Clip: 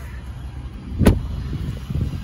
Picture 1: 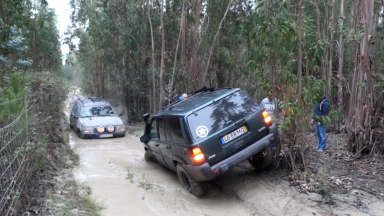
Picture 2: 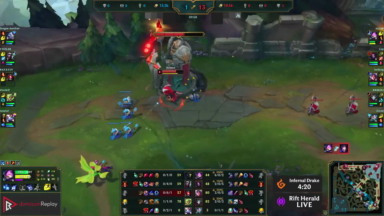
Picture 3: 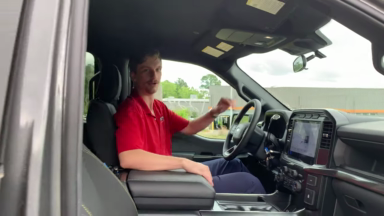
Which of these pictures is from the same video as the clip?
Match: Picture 3